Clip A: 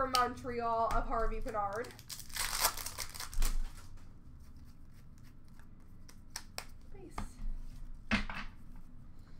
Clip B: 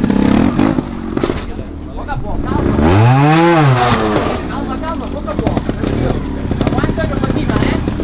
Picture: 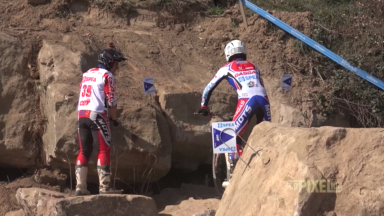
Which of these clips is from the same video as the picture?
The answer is B